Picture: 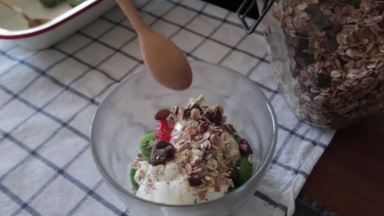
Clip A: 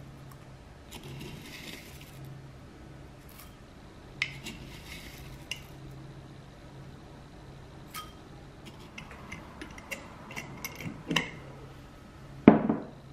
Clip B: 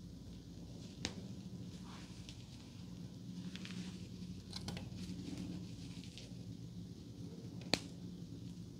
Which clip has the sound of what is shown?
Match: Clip A